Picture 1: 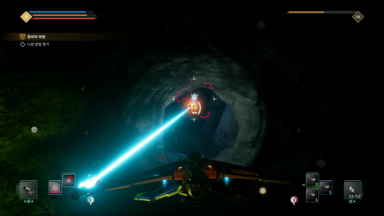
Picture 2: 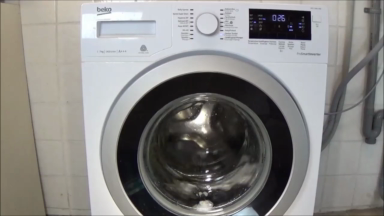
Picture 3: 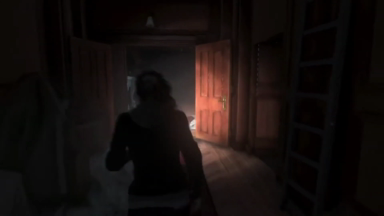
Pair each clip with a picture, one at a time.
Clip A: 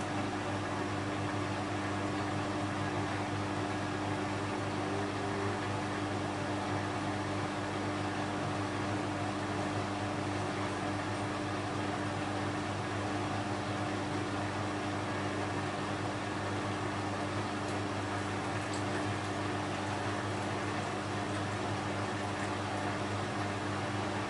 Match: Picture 2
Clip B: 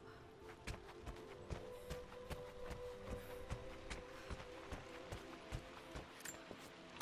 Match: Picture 3